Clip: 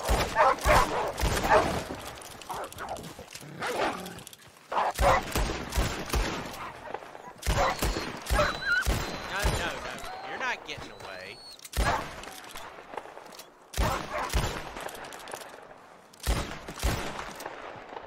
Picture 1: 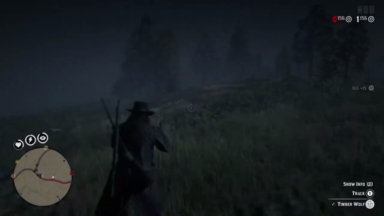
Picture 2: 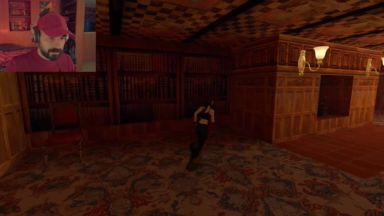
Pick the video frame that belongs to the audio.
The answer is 1